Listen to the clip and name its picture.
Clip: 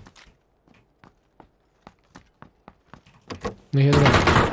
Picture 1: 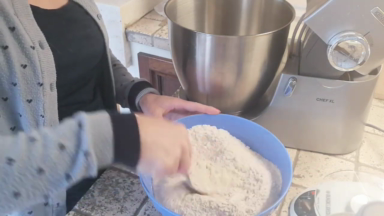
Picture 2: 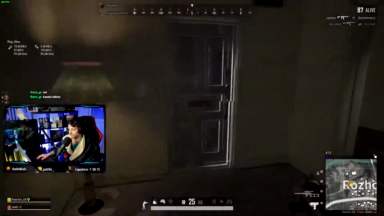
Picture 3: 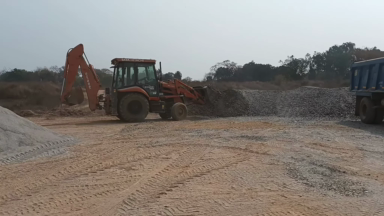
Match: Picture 2